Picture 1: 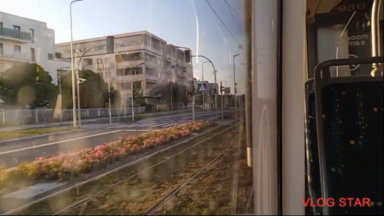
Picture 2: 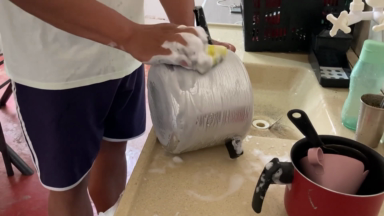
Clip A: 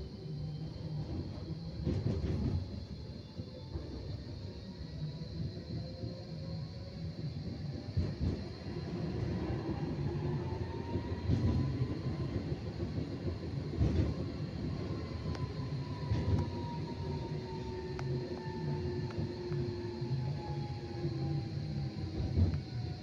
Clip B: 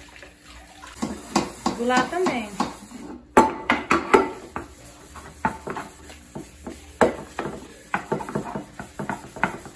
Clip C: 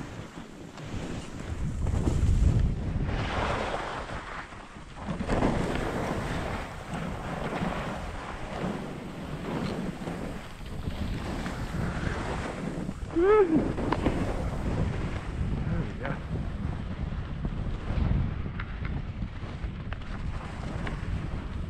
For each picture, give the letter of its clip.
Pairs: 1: A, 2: B